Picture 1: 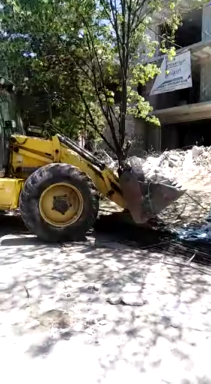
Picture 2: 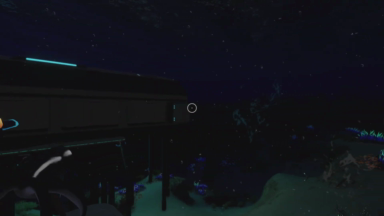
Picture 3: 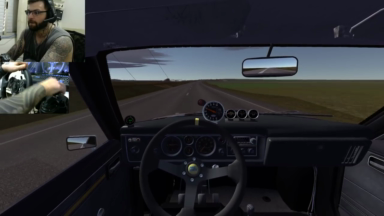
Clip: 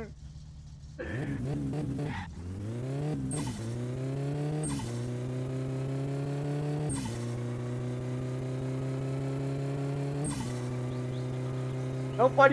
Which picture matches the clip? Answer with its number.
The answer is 3